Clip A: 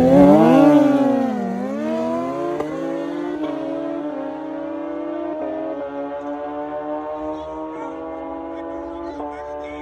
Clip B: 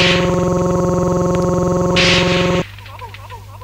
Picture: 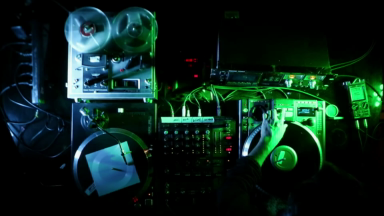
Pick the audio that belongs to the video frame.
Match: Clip B